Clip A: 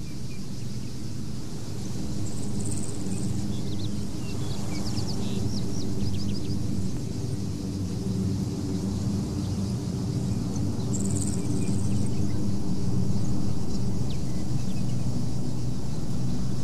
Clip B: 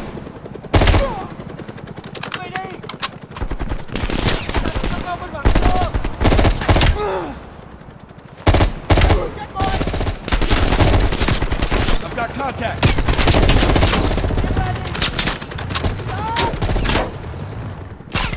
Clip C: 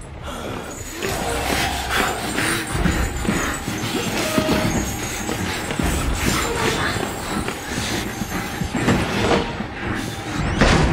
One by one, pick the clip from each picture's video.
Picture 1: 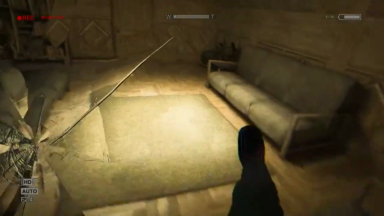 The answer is C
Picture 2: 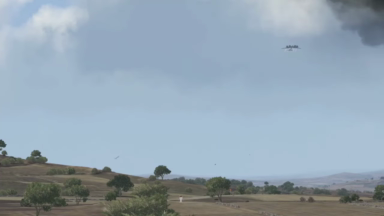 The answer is A